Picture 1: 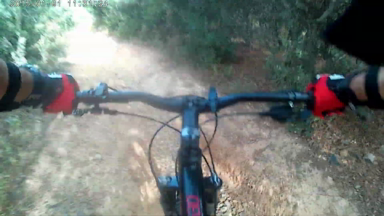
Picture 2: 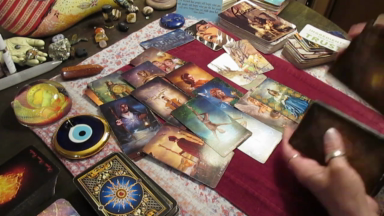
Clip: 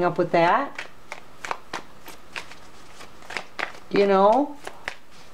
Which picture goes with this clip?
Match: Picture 2